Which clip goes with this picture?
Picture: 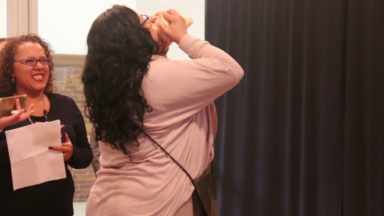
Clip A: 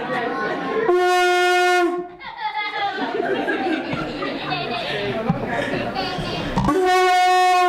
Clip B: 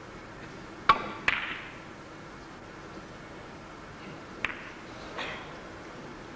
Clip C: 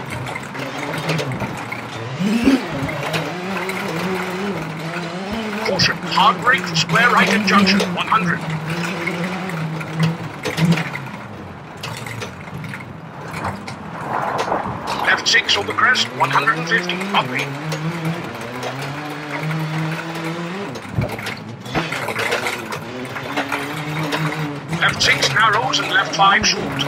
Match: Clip A